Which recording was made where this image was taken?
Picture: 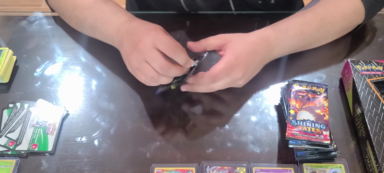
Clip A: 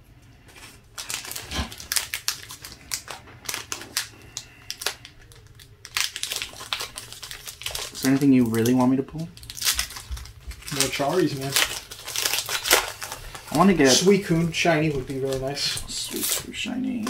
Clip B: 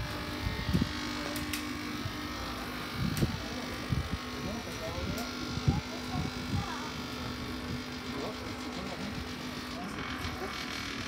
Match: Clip A